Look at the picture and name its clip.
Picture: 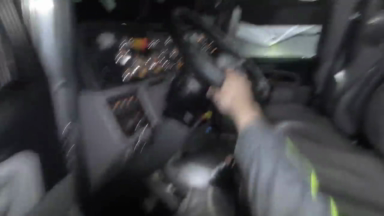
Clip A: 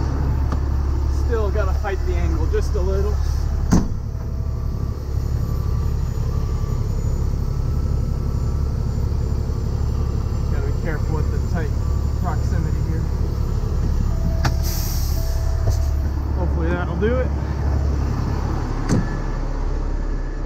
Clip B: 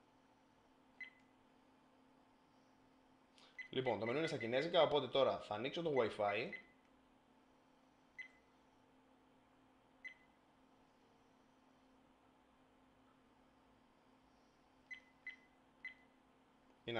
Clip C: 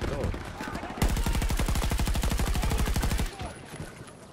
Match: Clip A